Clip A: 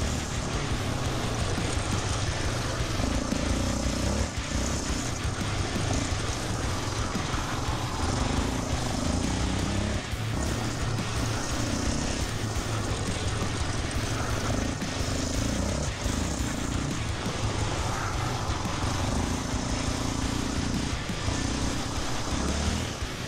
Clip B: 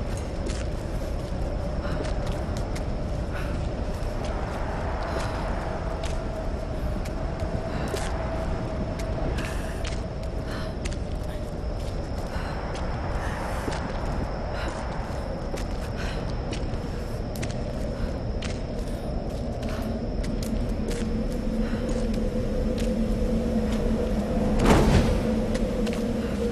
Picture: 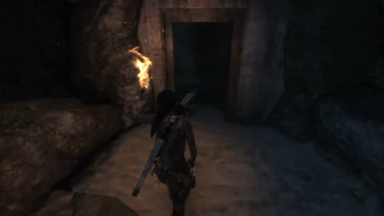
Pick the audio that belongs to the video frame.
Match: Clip B